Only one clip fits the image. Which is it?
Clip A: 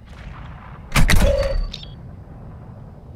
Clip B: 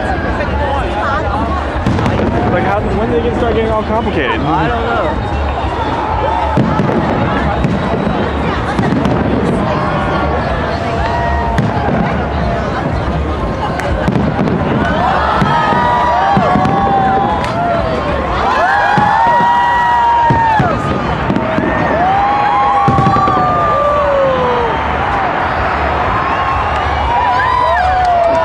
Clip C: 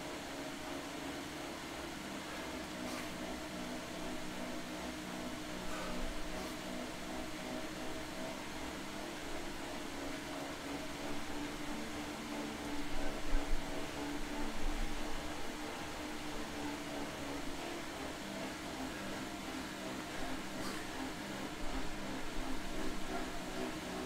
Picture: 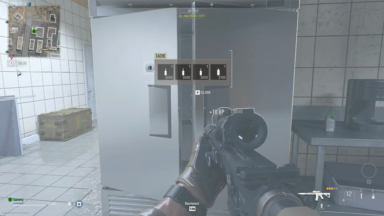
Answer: A